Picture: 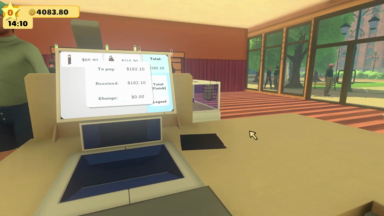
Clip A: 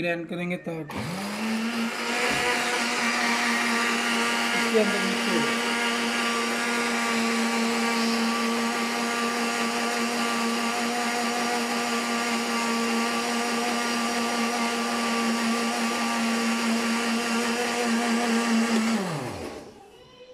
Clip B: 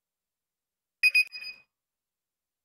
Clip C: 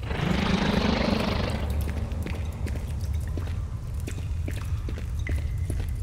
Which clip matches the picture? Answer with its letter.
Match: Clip B